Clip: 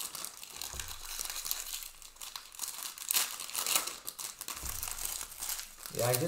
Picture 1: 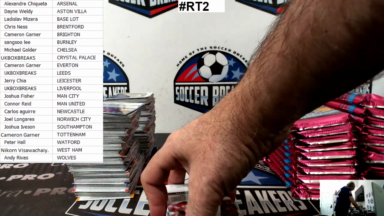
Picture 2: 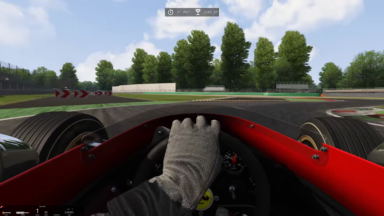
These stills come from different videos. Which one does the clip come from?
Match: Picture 1